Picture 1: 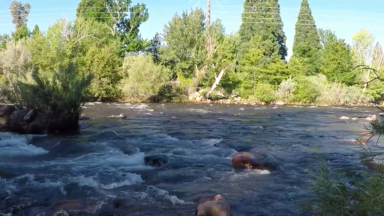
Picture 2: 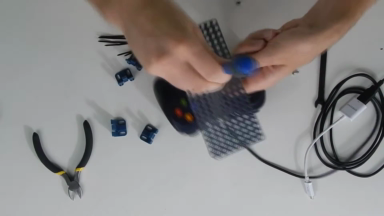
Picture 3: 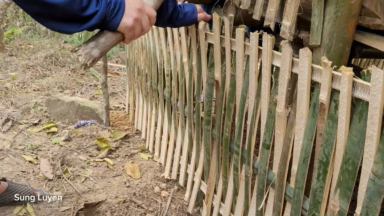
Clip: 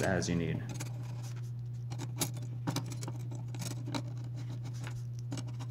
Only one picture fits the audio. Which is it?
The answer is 2